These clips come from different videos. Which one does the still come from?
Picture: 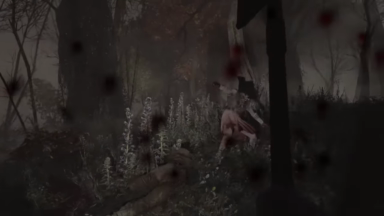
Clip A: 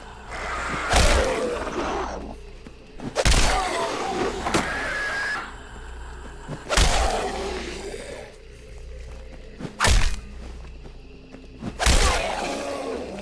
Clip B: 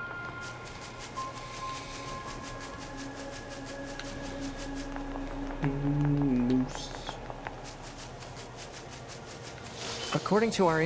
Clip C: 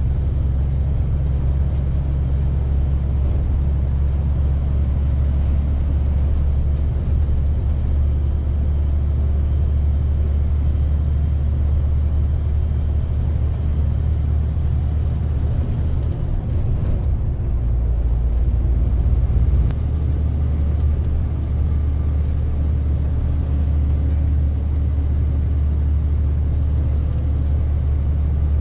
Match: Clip A